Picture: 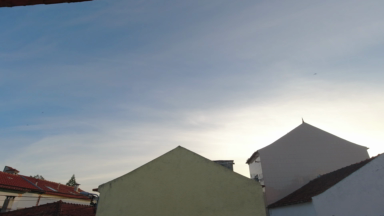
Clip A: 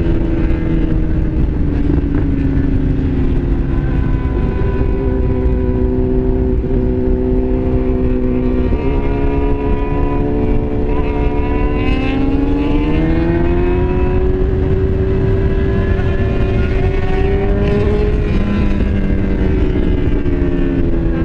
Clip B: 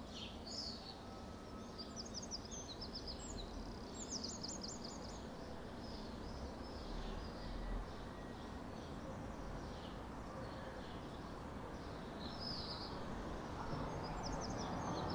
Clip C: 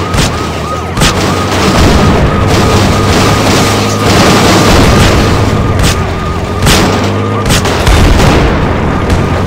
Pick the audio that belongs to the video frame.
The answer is B